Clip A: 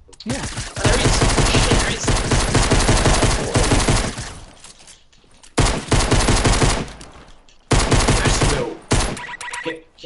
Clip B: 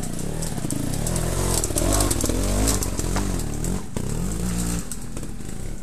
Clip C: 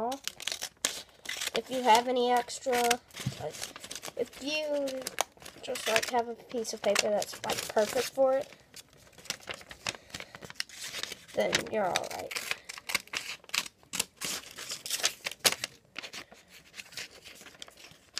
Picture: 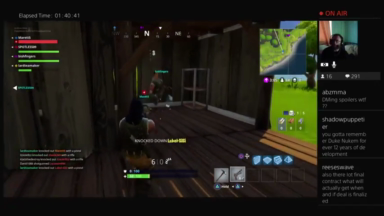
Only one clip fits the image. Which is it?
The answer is A